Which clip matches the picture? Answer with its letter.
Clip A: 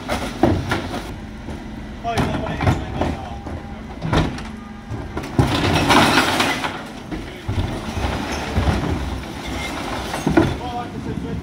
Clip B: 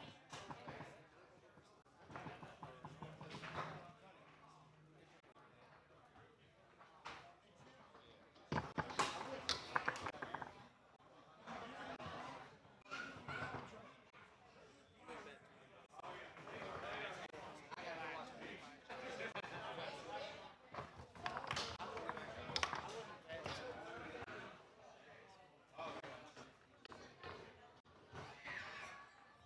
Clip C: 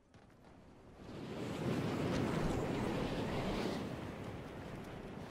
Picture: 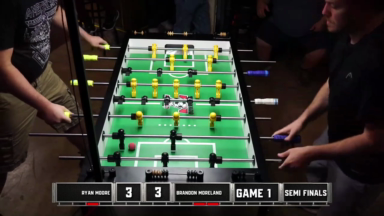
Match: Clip B